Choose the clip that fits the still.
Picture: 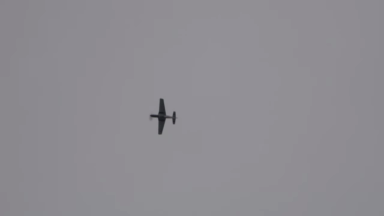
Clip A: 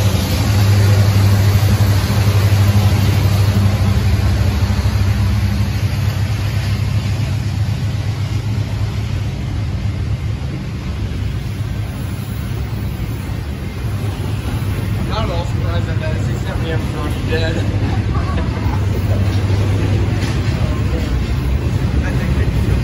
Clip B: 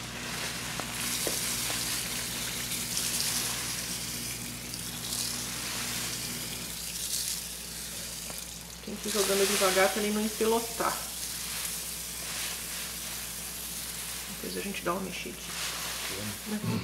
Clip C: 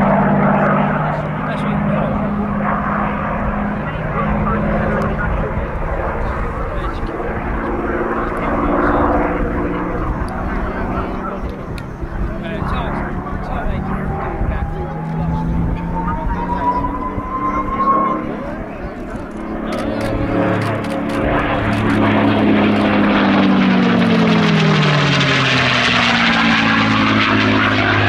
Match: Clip C